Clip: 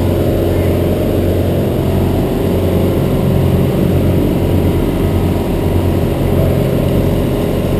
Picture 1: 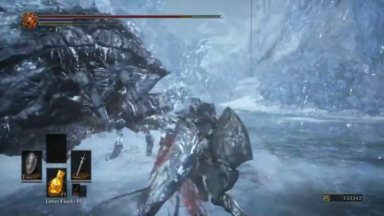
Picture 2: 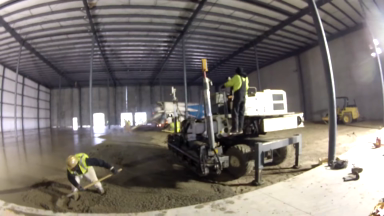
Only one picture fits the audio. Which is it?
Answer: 2